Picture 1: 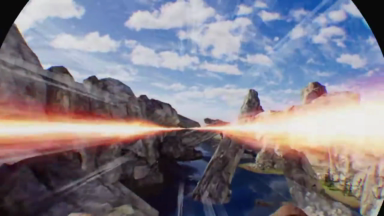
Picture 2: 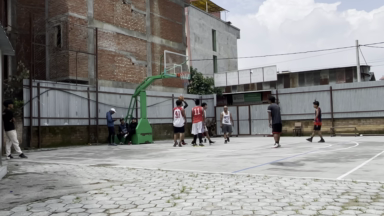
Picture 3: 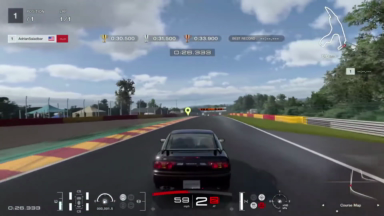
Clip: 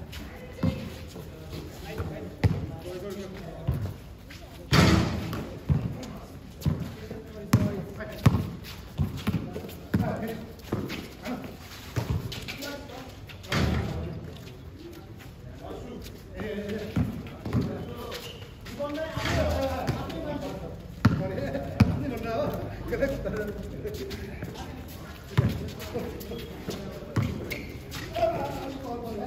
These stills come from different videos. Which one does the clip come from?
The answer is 2